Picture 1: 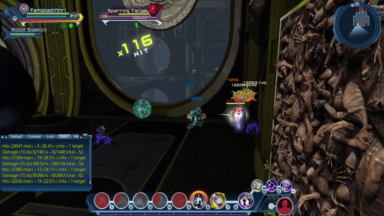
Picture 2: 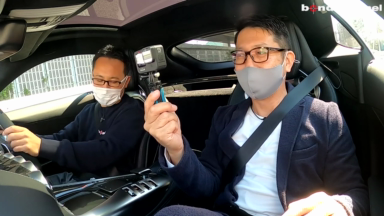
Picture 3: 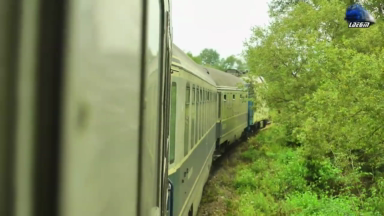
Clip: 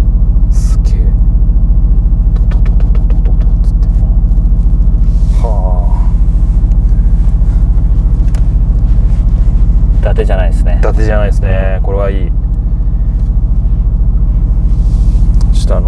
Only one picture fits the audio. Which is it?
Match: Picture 2